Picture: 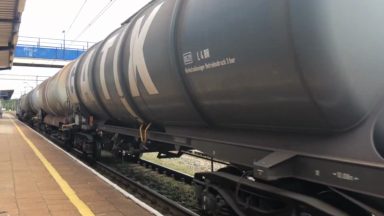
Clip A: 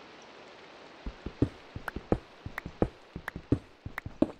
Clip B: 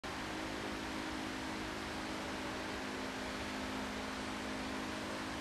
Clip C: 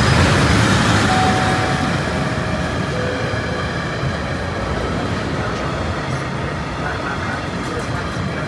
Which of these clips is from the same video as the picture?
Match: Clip C